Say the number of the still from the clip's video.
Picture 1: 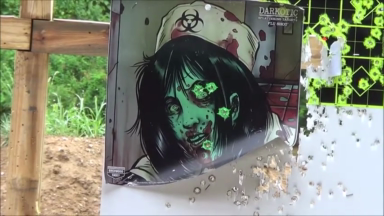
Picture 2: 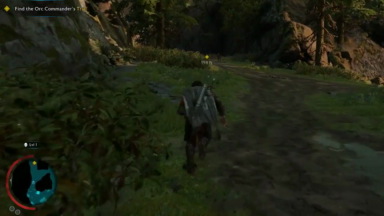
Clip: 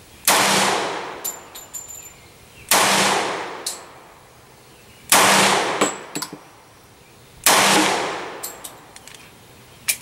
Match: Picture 1